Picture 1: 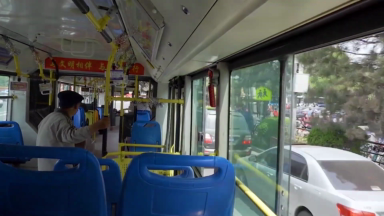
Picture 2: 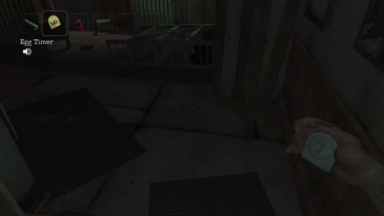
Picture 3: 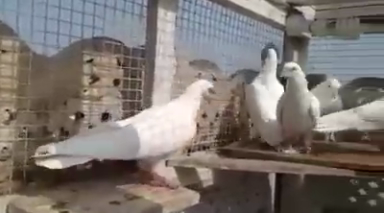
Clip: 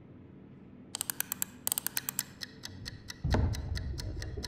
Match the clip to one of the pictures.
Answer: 2